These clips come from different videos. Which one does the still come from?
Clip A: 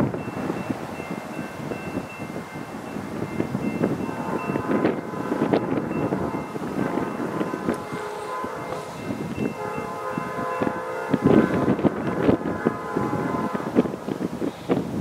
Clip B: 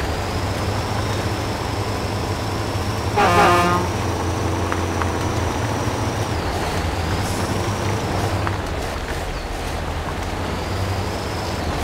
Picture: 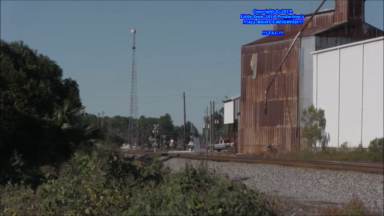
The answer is A